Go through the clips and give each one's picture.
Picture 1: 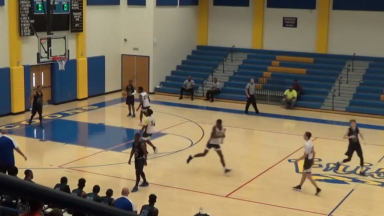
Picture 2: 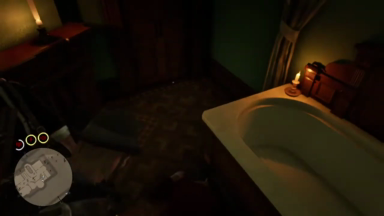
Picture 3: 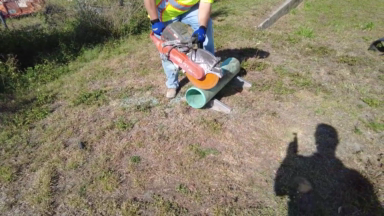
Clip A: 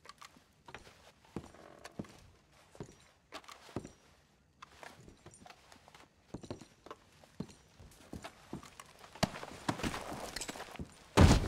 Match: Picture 2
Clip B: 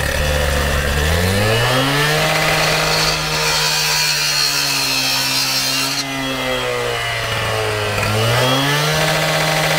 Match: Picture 3